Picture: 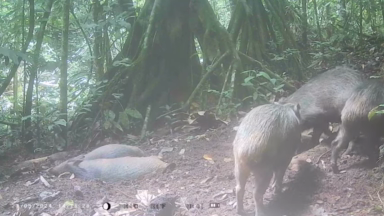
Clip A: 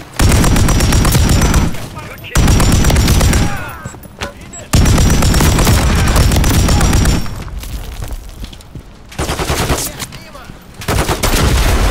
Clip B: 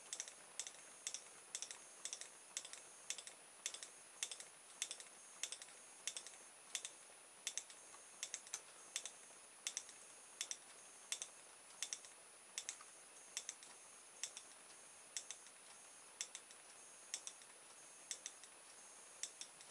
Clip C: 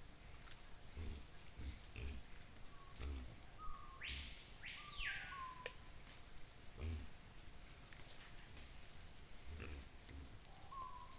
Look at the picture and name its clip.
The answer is C